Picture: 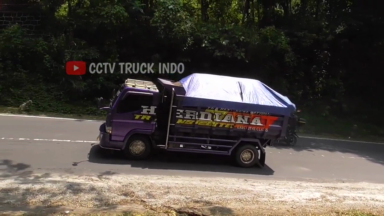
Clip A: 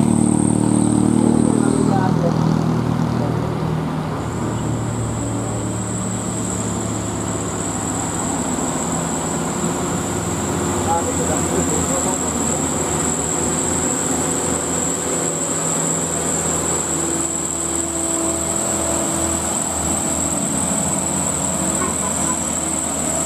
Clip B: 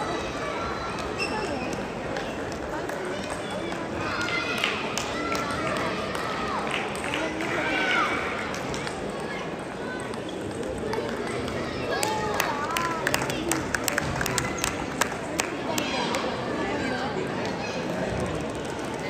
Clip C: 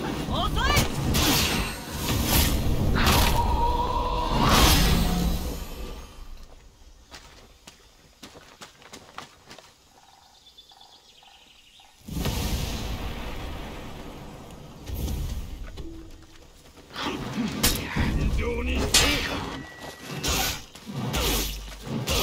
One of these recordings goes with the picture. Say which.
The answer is A